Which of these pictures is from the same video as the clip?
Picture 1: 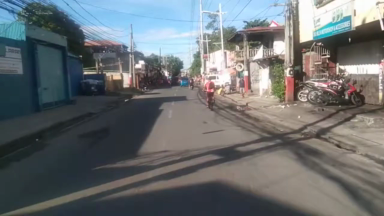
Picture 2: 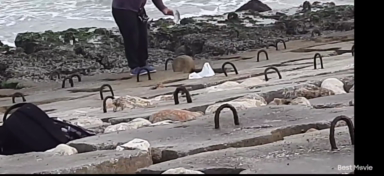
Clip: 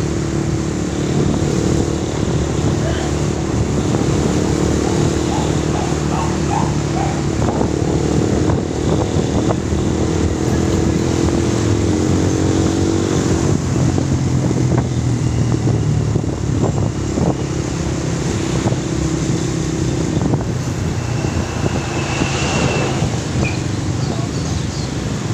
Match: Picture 1